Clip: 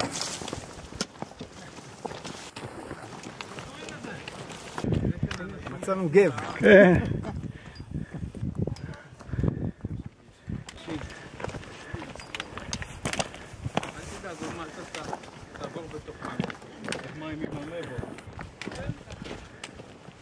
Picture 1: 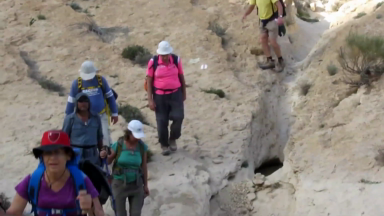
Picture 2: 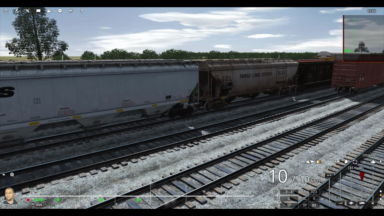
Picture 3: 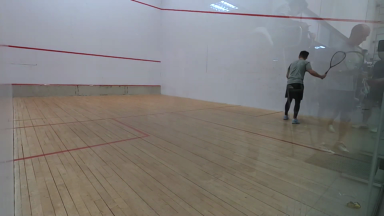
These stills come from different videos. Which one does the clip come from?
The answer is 1